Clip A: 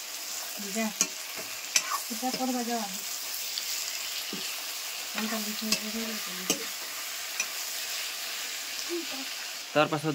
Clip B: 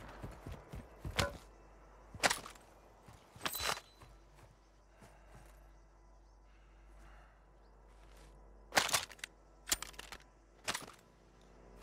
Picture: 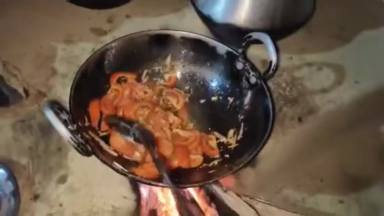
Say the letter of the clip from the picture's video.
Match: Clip A